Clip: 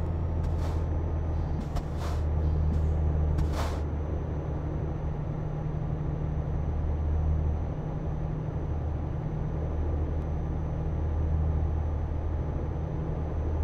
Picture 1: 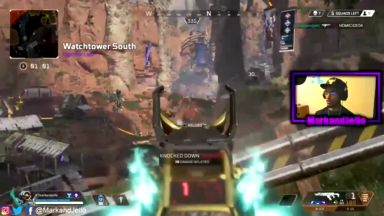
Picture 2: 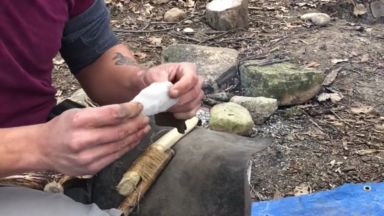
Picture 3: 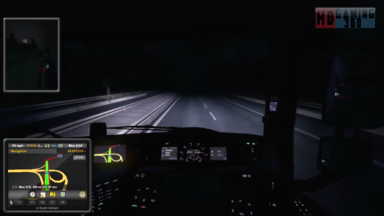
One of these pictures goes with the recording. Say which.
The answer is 3